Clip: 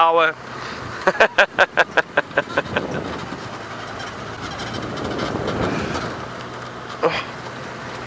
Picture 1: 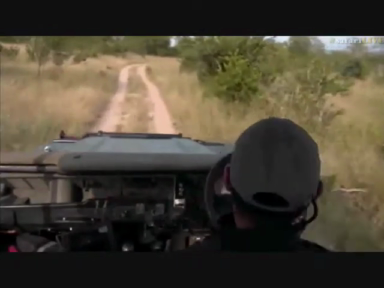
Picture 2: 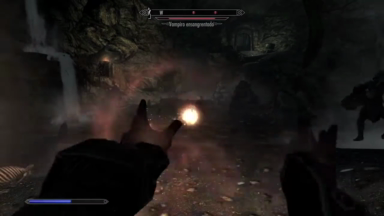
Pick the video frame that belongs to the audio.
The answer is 1